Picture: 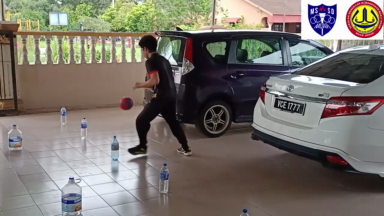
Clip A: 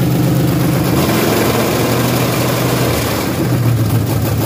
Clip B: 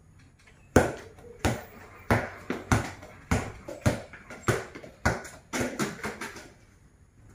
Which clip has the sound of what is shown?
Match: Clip B